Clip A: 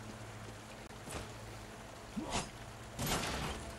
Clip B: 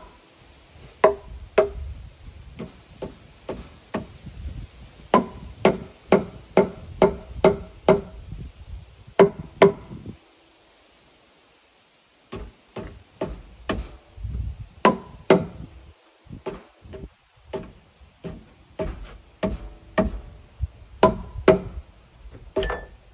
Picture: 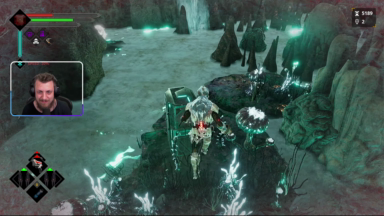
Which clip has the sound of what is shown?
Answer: A